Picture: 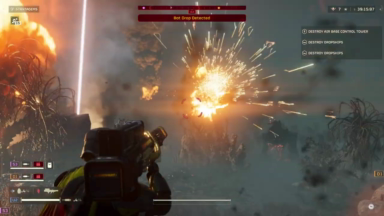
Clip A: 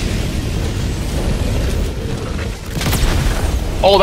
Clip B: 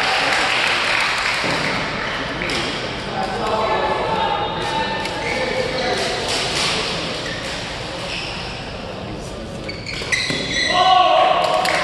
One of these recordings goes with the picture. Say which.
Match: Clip A